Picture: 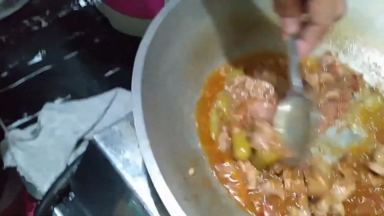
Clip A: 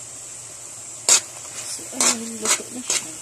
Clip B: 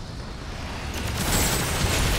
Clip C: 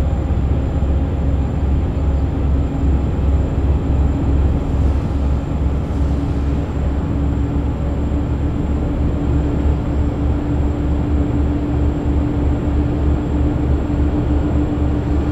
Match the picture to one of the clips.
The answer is A